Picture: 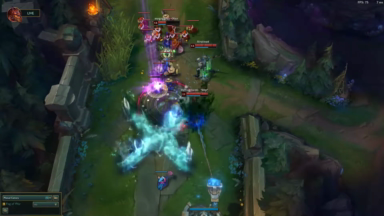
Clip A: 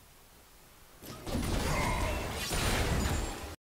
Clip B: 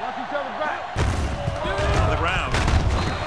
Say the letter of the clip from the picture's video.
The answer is A